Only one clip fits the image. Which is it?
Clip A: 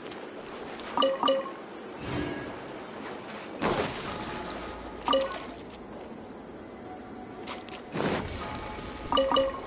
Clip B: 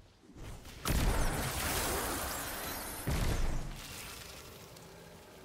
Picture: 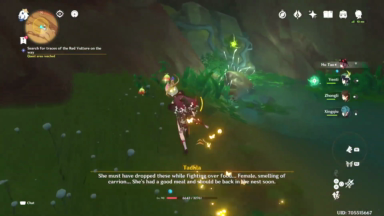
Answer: A